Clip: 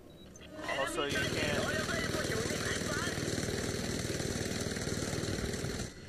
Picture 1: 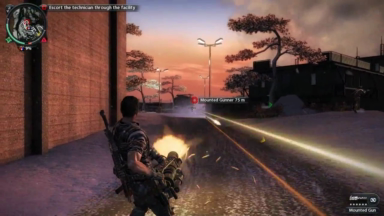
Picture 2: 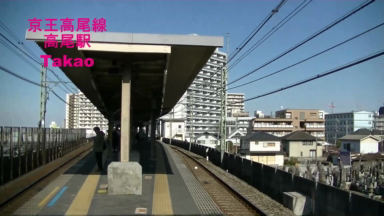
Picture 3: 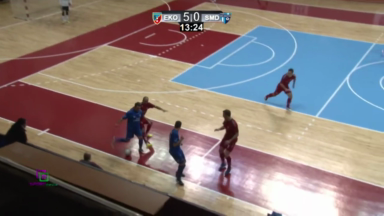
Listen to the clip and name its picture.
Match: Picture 1